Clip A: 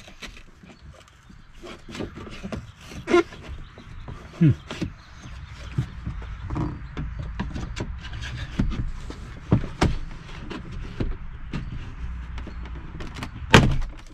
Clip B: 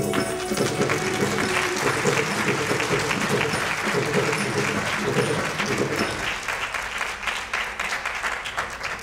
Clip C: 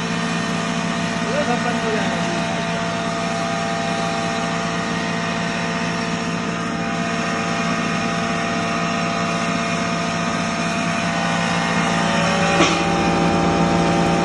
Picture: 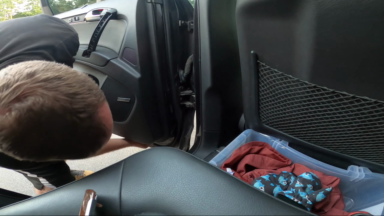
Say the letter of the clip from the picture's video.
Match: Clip A